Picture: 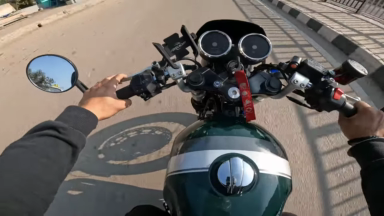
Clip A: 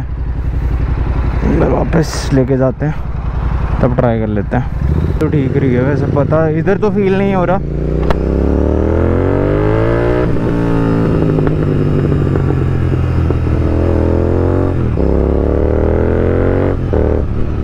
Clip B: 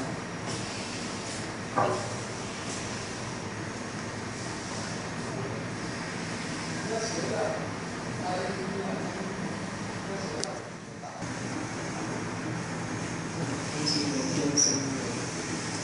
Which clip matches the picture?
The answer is A